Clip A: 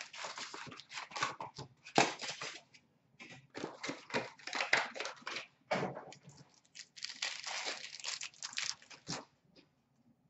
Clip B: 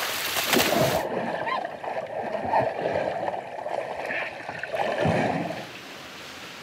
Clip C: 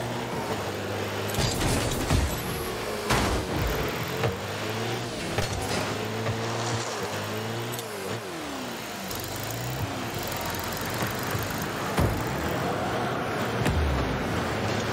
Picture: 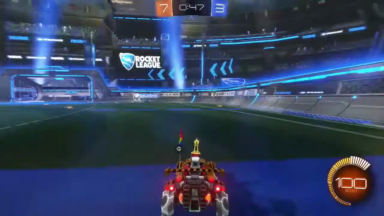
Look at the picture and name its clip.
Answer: C